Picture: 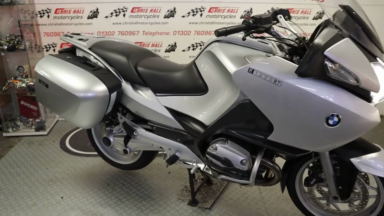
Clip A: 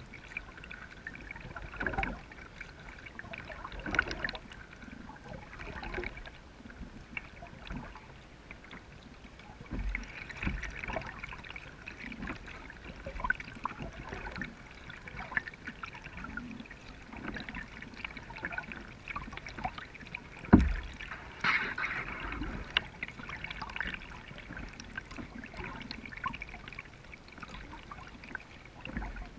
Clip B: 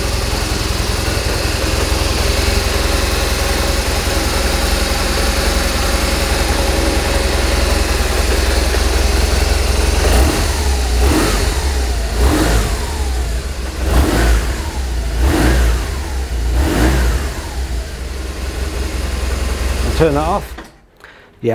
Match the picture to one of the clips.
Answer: B